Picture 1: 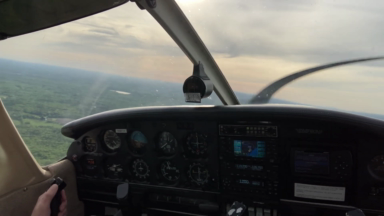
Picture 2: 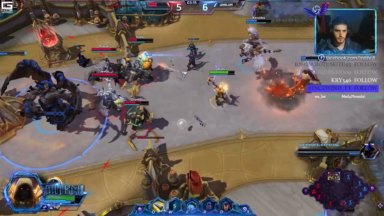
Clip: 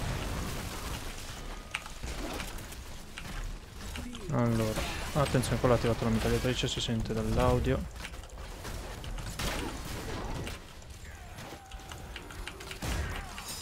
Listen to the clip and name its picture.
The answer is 2